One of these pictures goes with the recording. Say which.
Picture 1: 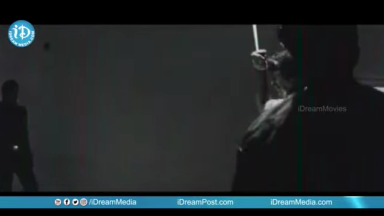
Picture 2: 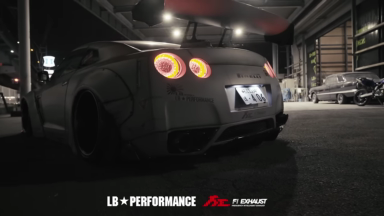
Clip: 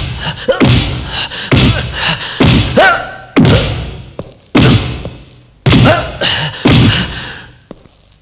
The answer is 1